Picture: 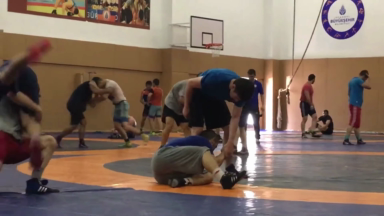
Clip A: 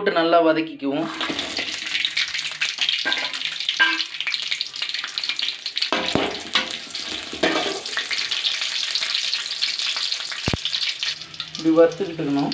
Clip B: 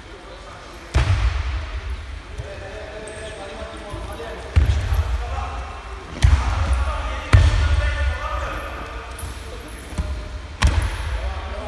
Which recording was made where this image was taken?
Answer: B